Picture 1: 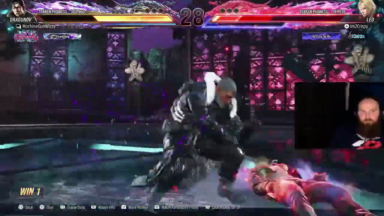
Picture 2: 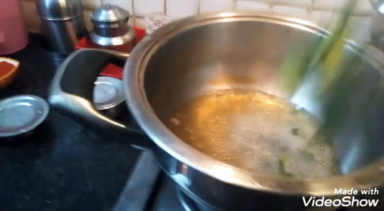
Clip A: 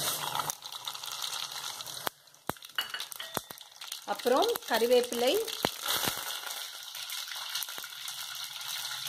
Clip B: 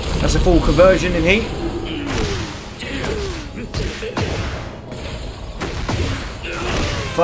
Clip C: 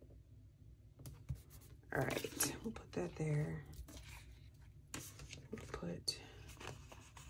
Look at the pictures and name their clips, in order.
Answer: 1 B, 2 A